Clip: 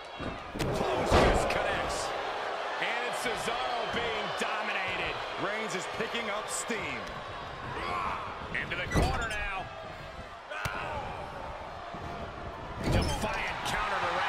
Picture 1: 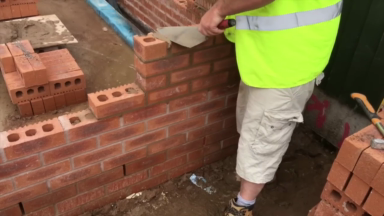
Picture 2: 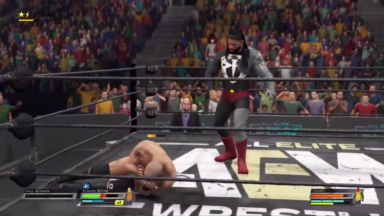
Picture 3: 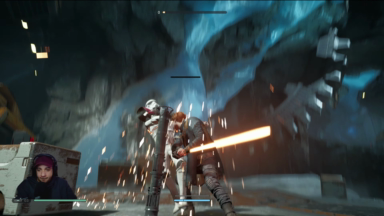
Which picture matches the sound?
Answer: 2